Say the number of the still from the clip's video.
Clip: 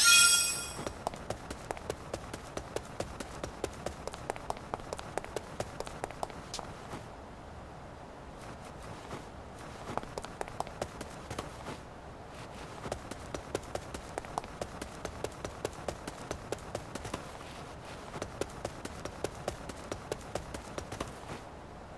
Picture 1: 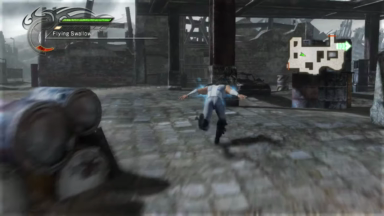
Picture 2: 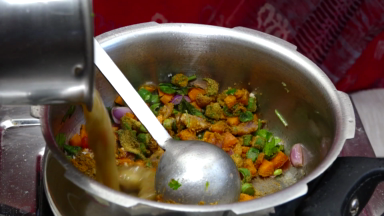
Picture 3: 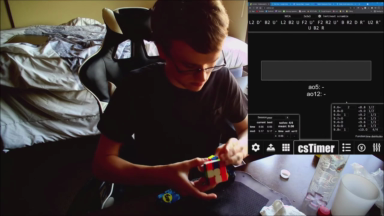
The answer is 1